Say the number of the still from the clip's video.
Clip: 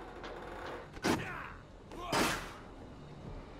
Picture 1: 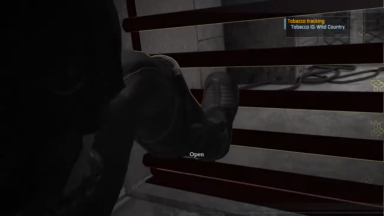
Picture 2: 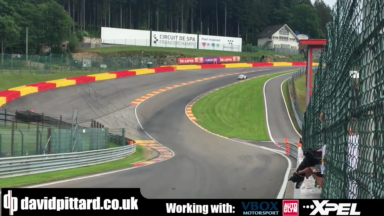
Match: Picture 1